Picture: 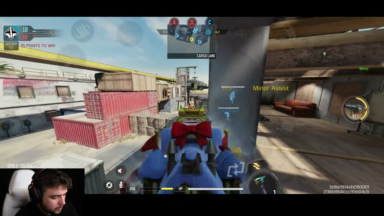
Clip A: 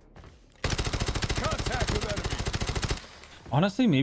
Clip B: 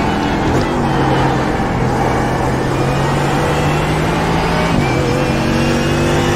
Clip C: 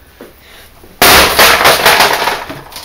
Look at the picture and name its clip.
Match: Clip A